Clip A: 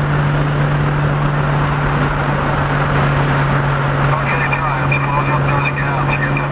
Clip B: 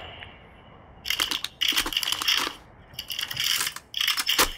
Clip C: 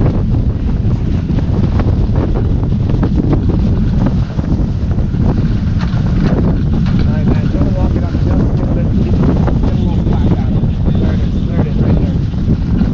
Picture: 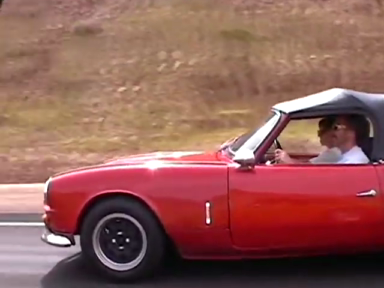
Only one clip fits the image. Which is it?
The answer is A